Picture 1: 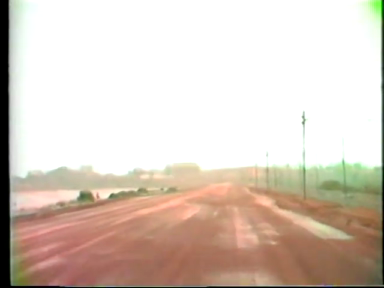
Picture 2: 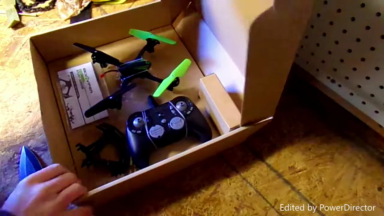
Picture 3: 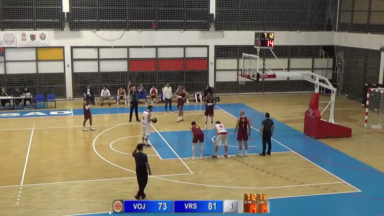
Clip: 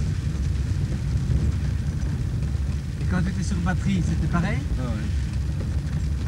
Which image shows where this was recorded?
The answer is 1